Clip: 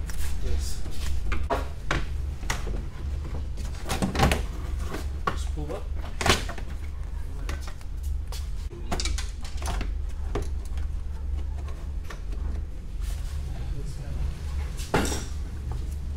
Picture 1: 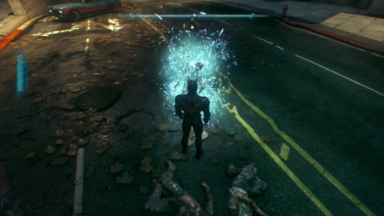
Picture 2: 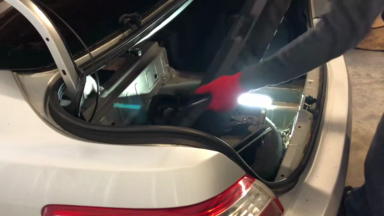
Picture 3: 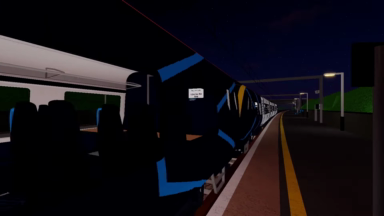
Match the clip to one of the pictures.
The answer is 2